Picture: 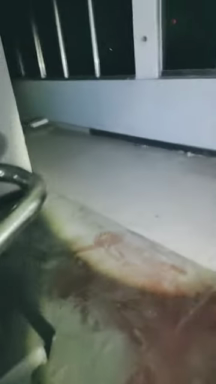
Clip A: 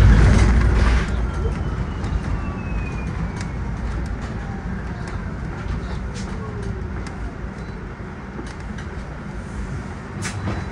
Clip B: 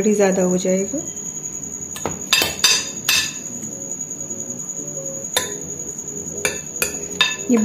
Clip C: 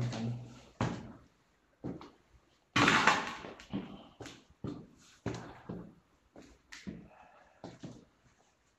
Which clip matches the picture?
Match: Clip C